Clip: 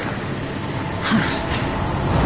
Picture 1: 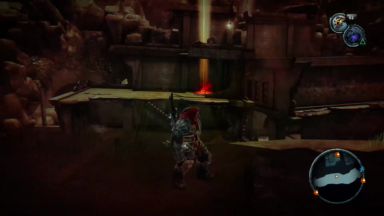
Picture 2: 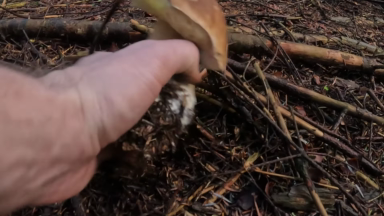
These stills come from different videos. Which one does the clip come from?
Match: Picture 1